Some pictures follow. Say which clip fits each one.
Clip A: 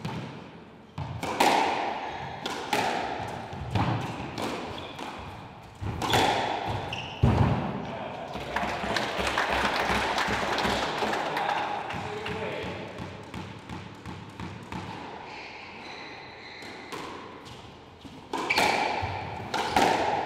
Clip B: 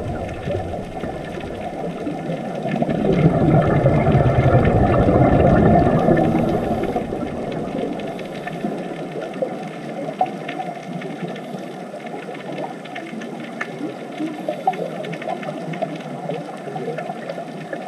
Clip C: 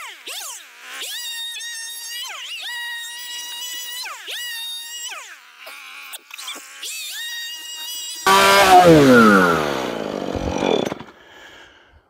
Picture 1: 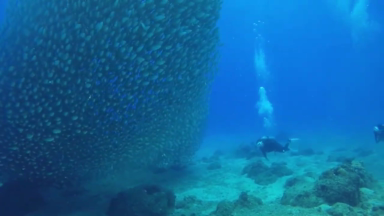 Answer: B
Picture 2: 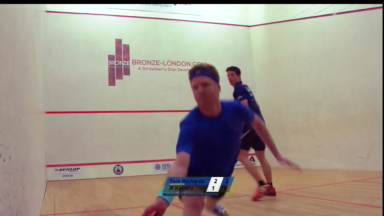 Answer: A